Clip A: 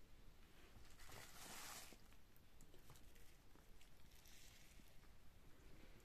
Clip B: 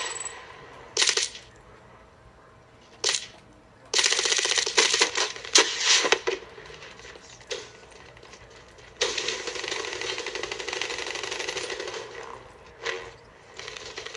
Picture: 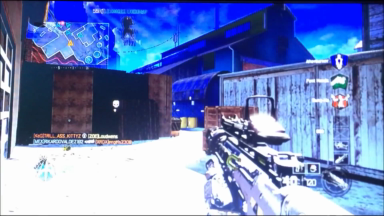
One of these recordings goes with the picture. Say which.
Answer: B